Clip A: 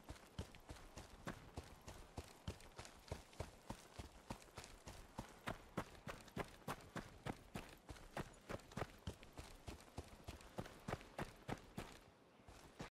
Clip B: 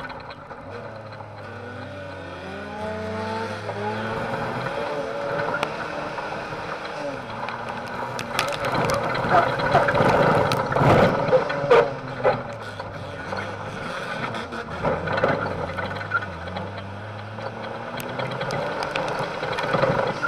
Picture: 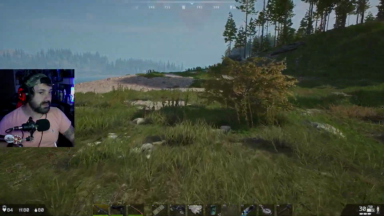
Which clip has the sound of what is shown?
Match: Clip A